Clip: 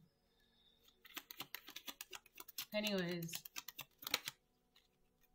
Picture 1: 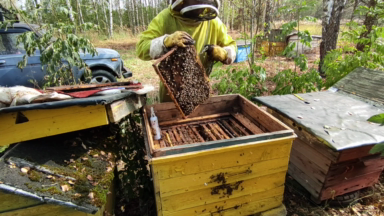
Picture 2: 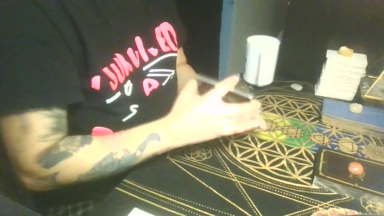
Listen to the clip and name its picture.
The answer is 2